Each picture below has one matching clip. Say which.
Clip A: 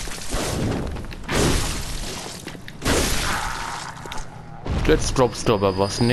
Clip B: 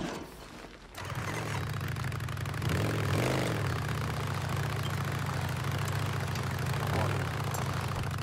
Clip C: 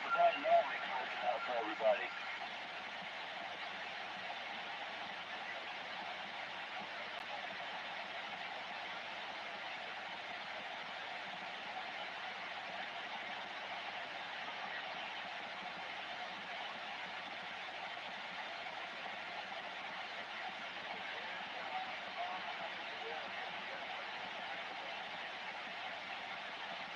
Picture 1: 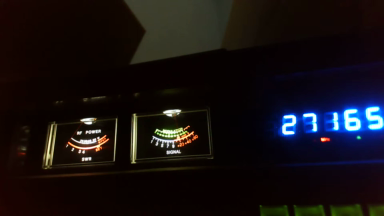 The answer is C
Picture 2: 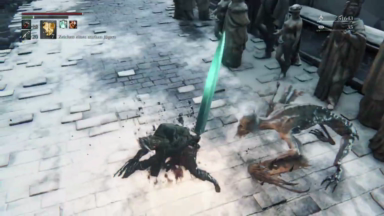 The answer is A